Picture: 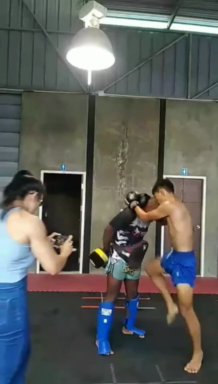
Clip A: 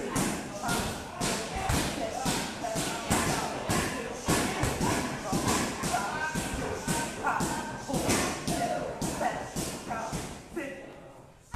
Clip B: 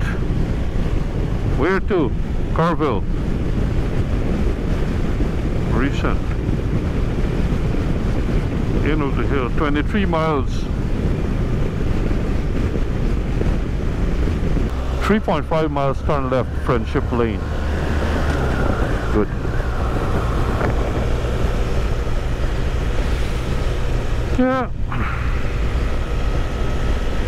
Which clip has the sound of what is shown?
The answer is A